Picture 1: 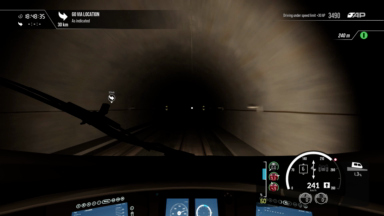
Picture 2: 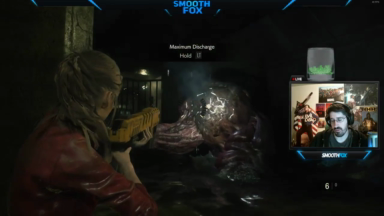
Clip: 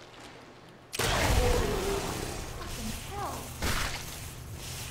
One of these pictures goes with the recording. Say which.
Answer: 2